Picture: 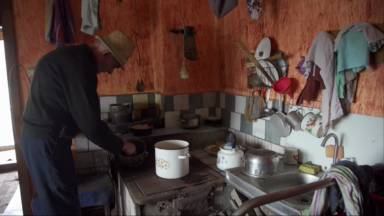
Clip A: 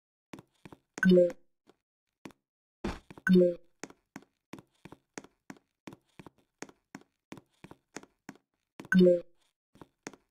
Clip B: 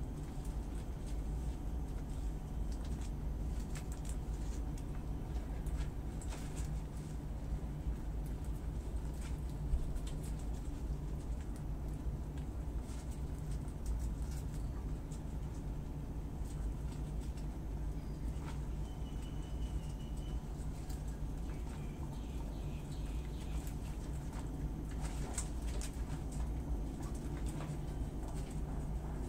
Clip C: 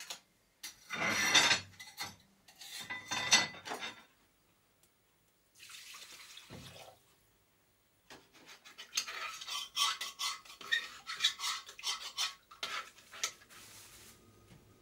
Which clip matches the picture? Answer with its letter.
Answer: C